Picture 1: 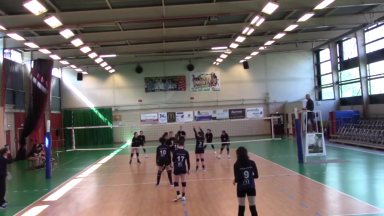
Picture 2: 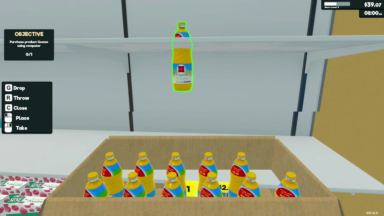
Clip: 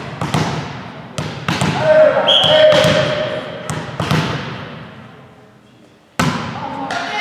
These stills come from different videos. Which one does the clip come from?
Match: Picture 1